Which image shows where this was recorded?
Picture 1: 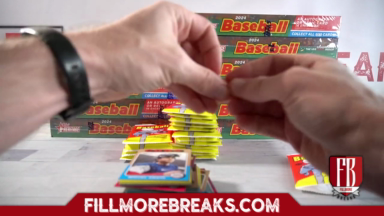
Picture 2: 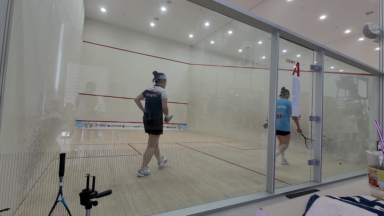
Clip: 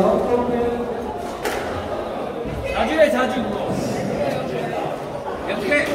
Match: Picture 2